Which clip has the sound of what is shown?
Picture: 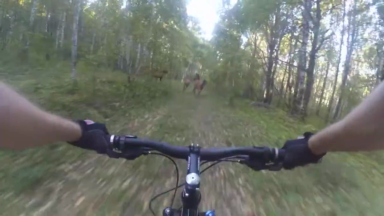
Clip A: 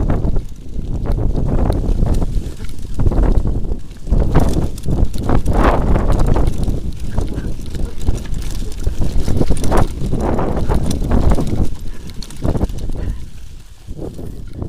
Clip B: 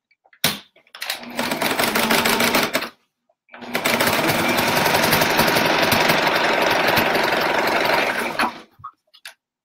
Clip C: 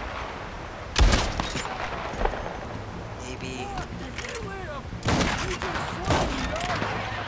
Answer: A